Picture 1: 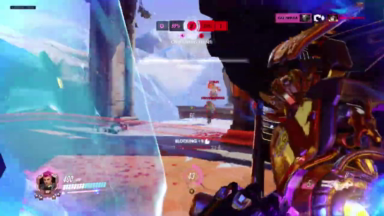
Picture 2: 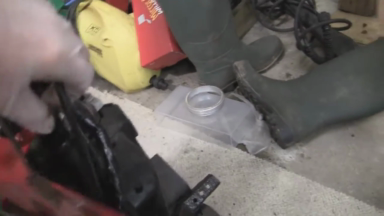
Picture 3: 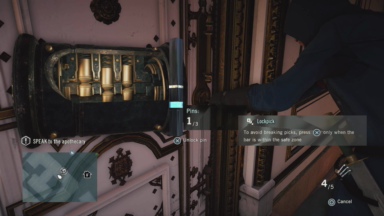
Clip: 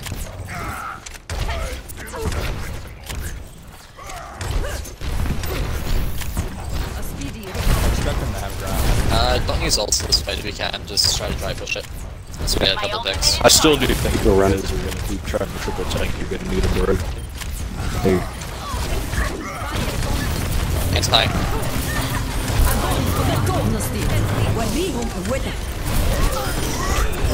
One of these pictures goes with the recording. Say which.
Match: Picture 1